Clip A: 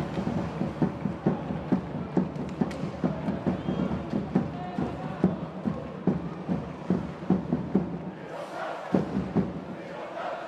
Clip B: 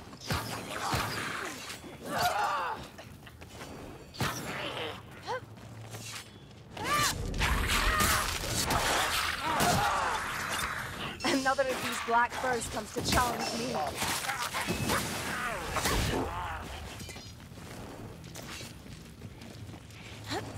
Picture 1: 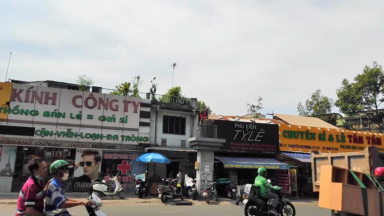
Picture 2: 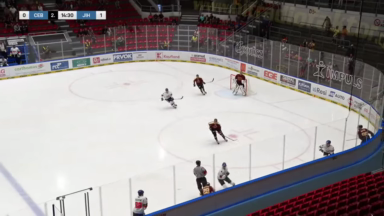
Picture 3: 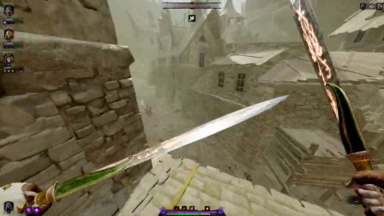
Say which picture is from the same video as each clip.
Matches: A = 2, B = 3